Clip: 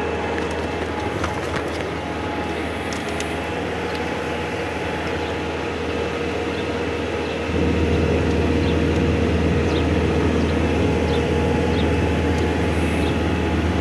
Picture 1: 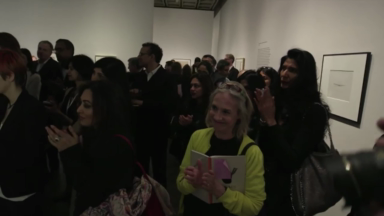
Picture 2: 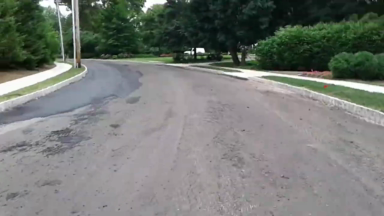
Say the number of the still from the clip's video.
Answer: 2